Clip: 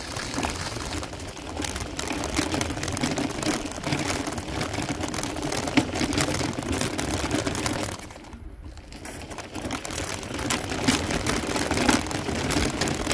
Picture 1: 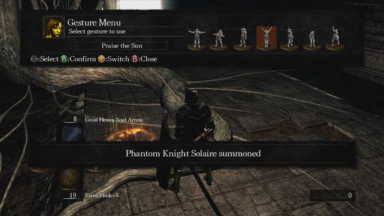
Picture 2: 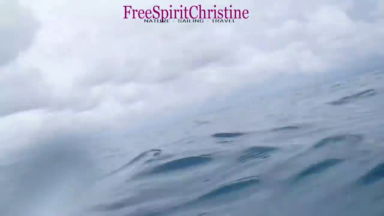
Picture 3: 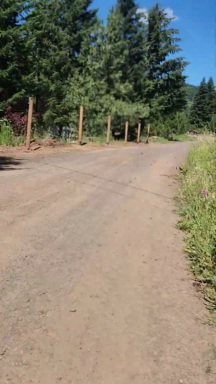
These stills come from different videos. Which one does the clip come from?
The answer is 3